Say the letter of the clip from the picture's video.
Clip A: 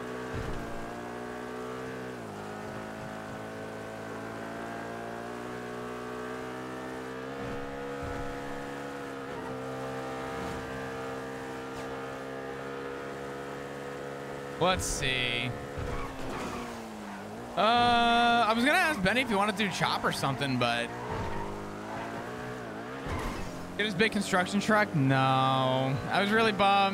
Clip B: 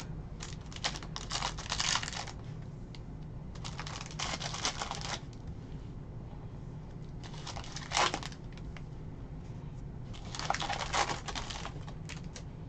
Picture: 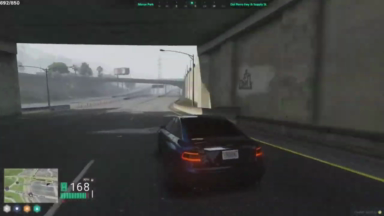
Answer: A